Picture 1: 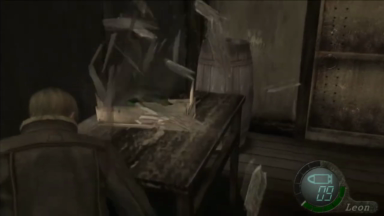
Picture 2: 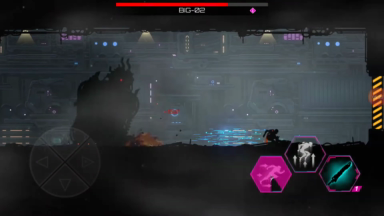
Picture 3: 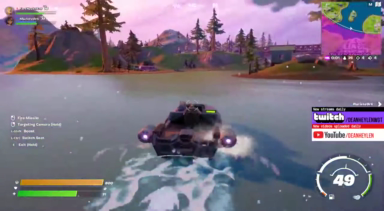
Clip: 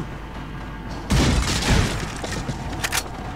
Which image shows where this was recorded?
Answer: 1